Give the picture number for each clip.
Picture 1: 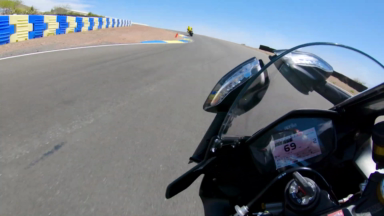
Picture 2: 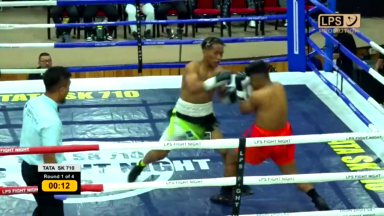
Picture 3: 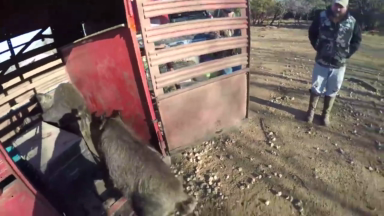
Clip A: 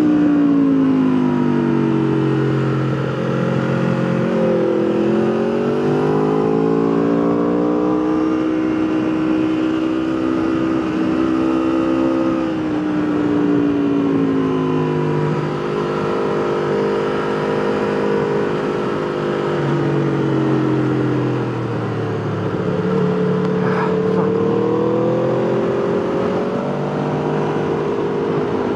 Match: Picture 1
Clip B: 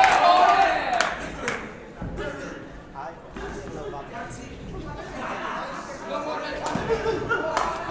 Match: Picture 2